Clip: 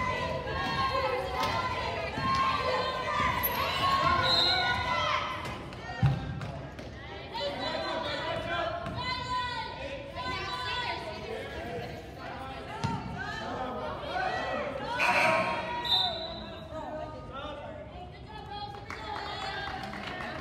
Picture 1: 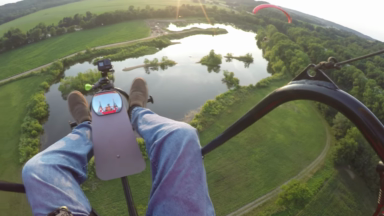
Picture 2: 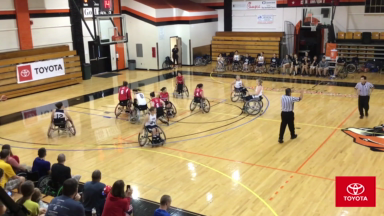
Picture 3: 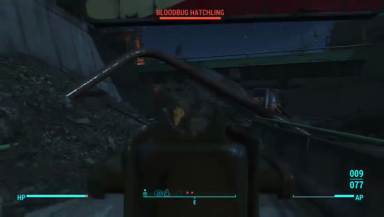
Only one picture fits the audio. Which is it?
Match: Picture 2